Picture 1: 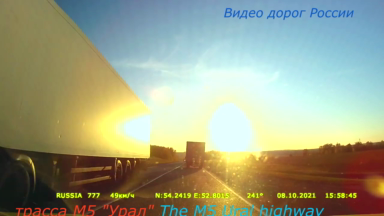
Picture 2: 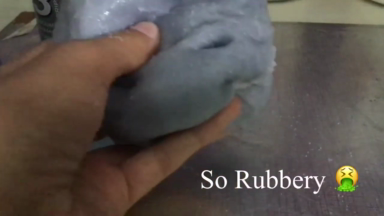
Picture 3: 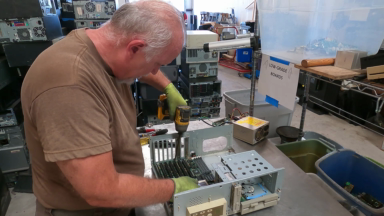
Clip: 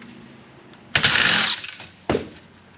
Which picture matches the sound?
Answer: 3